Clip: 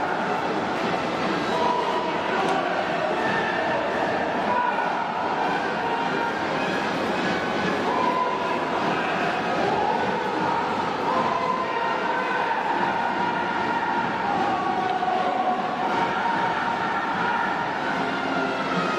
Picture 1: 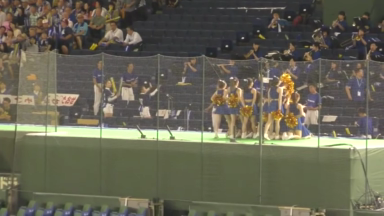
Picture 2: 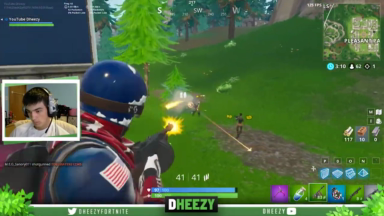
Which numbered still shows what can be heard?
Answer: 1